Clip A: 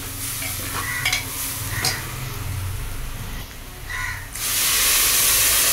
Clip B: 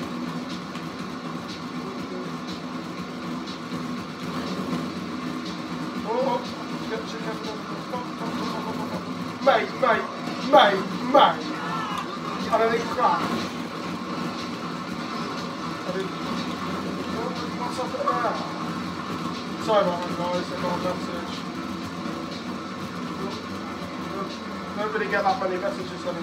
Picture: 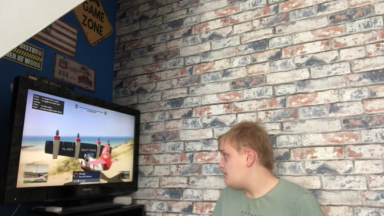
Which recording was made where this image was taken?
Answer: B